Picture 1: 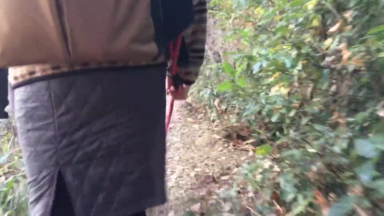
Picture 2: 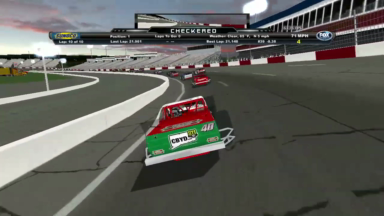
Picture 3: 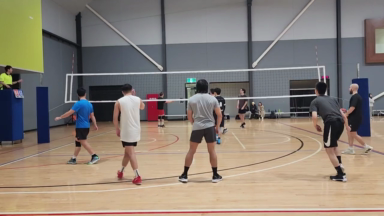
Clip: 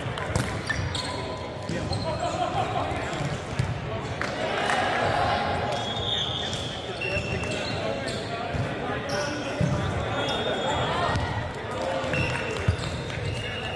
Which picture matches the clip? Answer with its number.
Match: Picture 3